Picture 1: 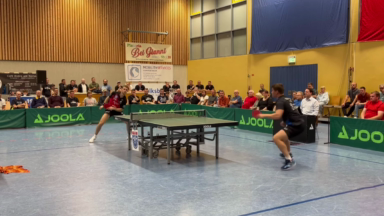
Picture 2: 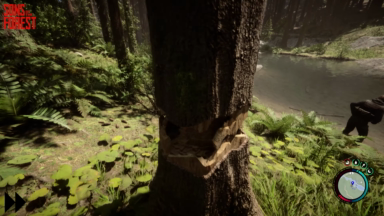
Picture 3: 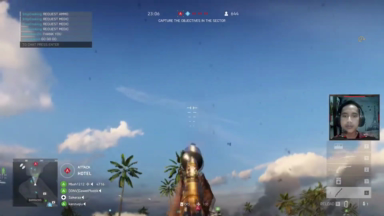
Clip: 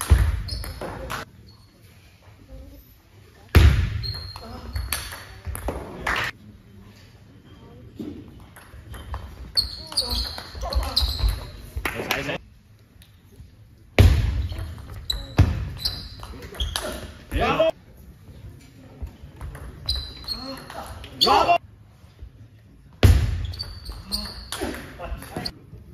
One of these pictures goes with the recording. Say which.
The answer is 1